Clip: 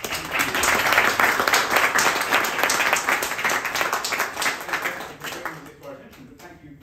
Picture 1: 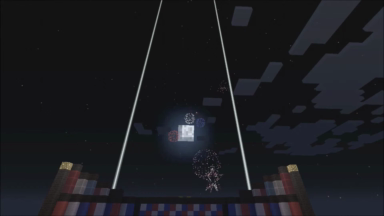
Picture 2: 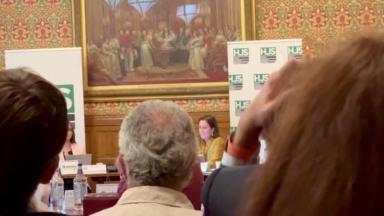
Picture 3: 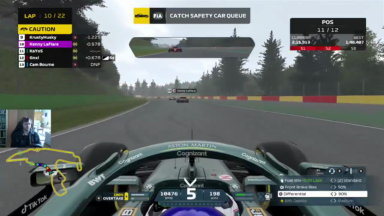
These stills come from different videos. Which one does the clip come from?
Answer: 2